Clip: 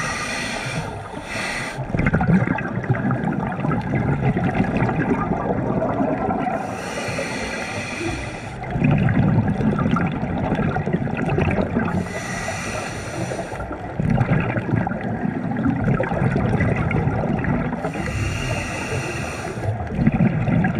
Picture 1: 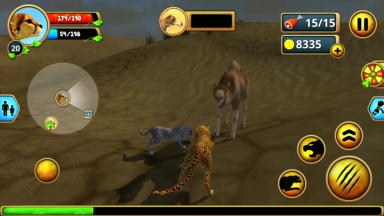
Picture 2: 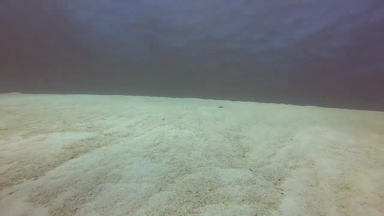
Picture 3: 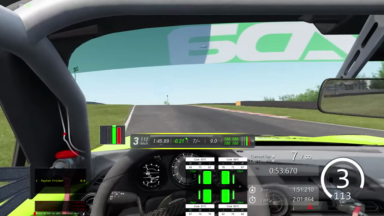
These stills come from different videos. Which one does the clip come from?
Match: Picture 2